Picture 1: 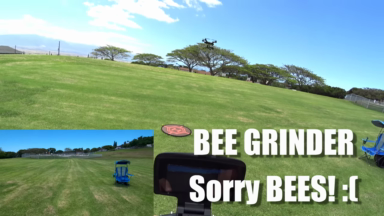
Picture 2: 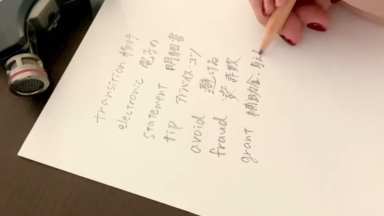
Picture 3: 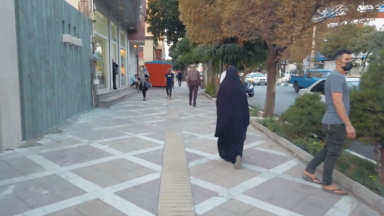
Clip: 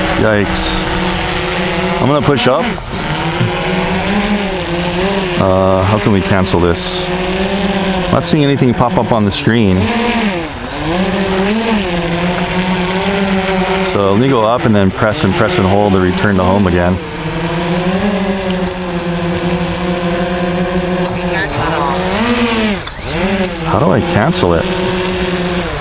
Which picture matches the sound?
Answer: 1